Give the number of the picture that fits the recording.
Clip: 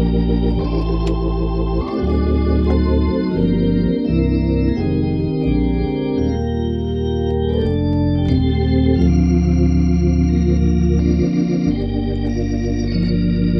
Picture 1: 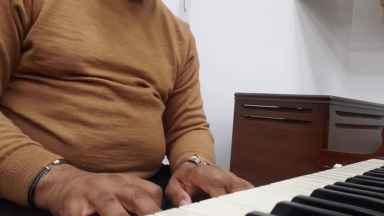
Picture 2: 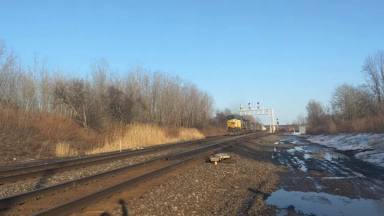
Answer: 1